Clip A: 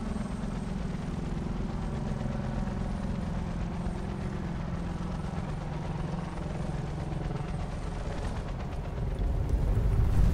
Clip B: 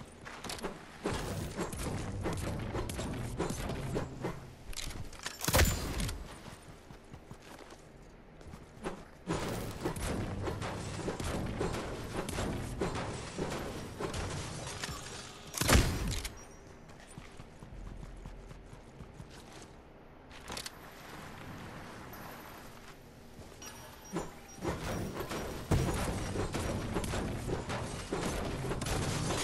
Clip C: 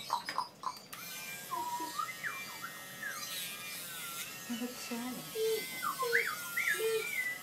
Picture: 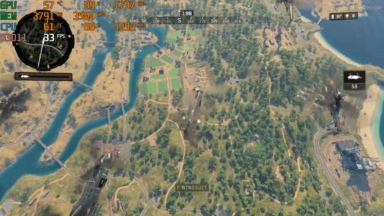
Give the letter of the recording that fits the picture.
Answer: A